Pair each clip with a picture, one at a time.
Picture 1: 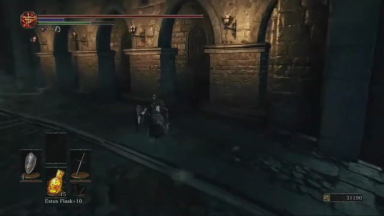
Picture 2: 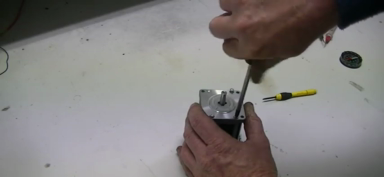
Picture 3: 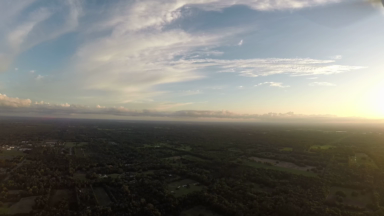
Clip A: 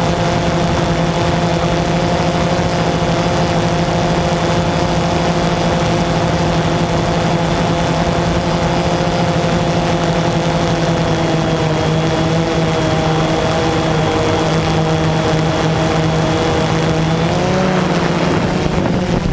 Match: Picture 3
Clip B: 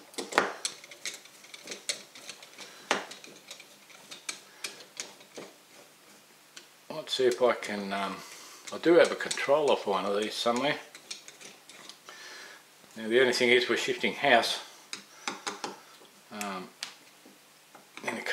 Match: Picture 2